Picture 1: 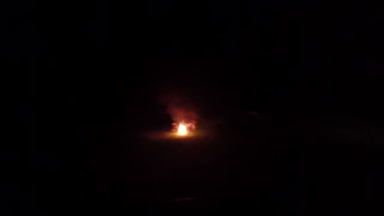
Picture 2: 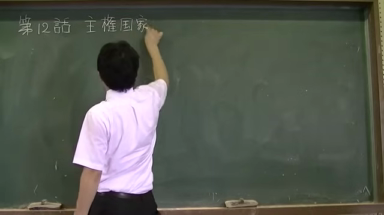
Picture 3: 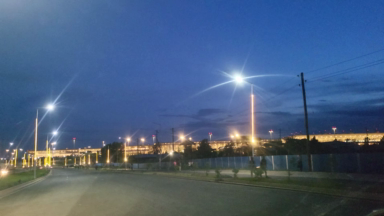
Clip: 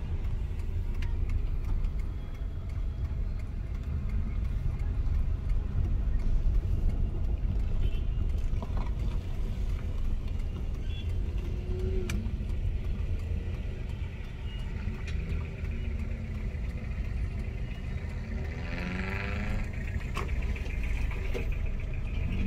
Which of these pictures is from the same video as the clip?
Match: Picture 3